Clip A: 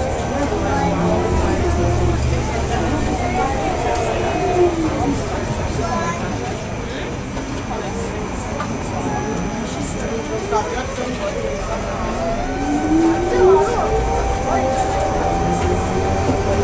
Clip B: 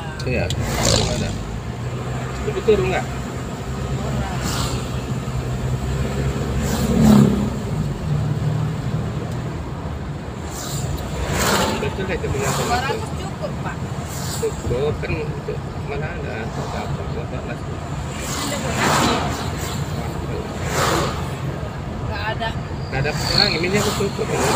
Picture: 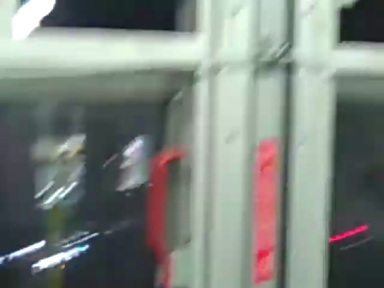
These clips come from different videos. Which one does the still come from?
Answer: A